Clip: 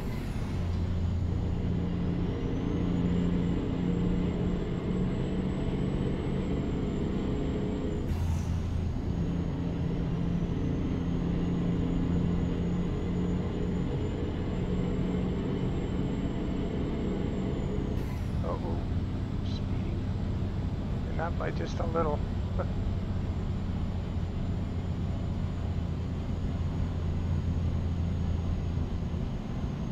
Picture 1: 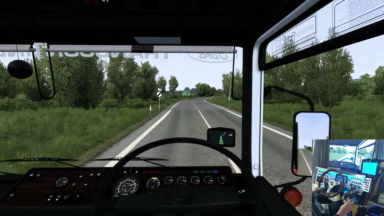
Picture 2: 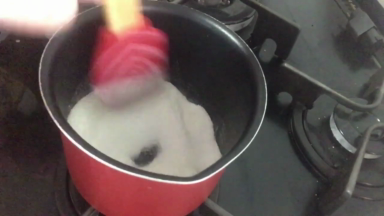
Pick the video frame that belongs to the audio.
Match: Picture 1